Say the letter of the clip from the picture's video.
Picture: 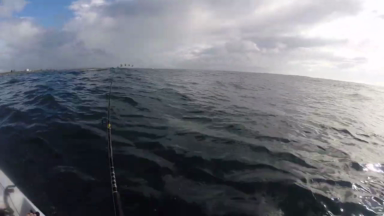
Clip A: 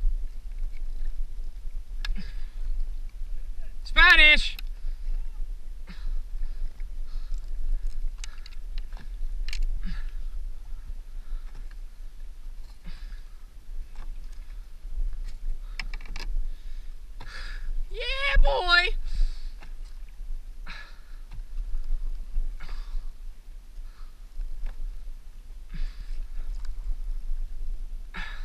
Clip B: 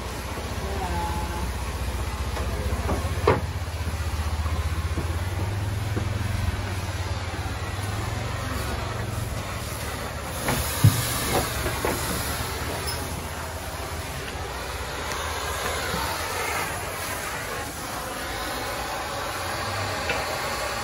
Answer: A